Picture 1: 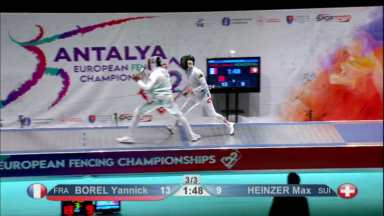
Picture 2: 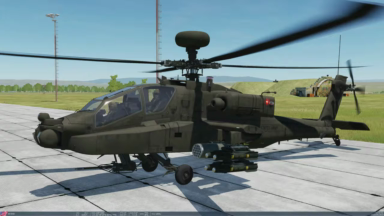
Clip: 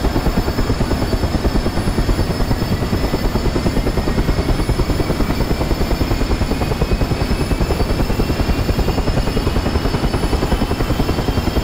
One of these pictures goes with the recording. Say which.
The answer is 2